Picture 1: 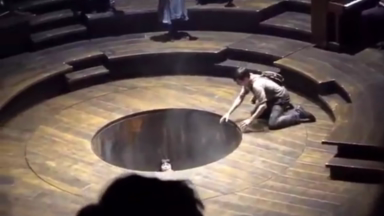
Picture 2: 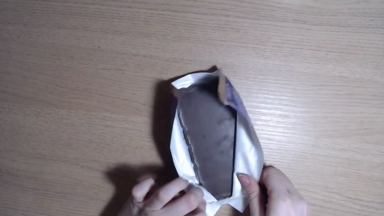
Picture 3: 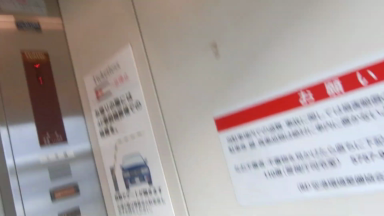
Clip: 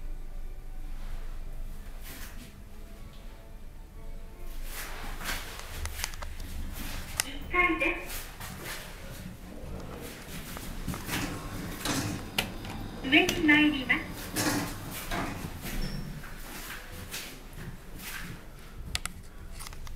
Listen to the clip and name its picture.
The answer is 3